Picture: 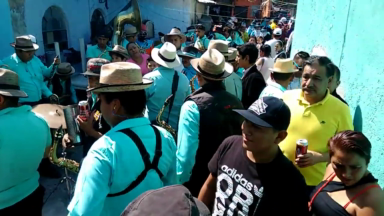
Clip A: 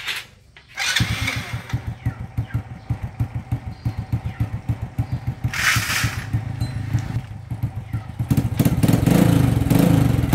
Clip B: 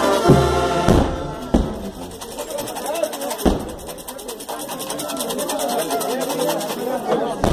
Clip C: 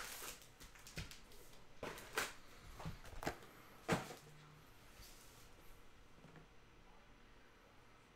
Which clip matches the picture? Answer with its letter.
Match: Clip B